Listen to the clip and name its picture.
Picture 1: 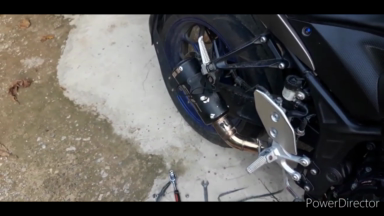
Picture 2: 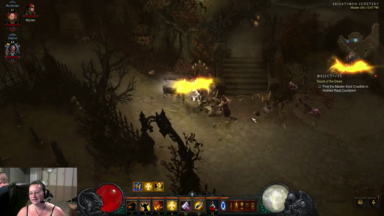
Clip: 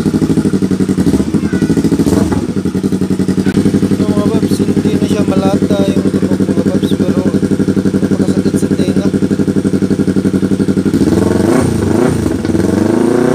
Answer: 1